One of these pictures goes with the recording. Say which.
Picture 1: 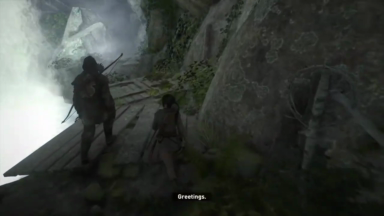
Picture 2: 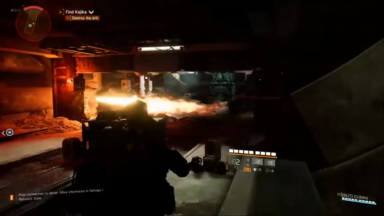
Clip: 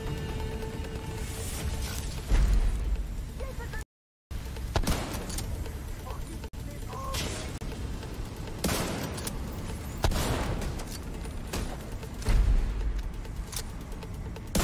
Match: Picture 2